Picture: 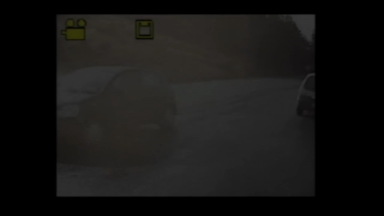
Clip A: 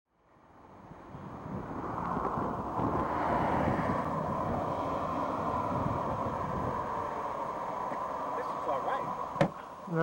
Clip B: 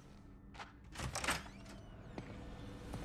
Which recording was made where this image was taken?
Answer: A